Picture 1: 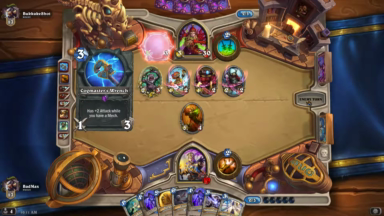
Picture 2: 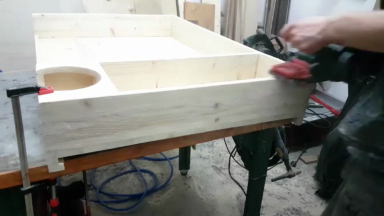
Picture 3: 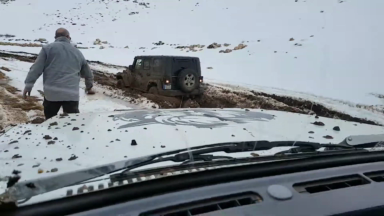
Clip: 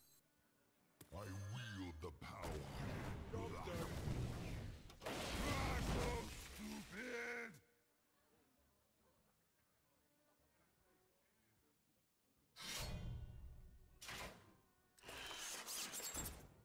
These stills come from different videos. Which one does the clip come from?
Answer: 1